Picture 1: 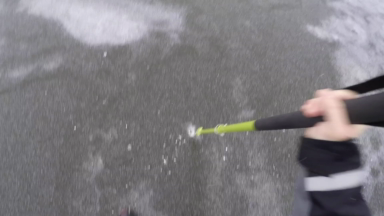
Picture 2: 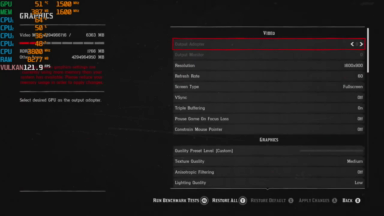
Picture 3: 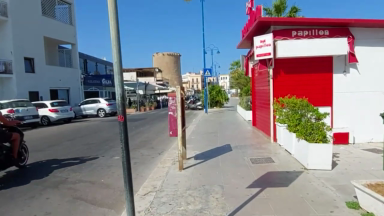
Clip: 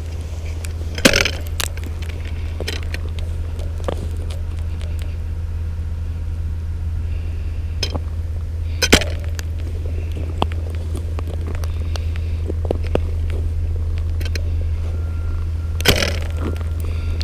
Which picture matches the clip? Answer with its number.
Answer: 1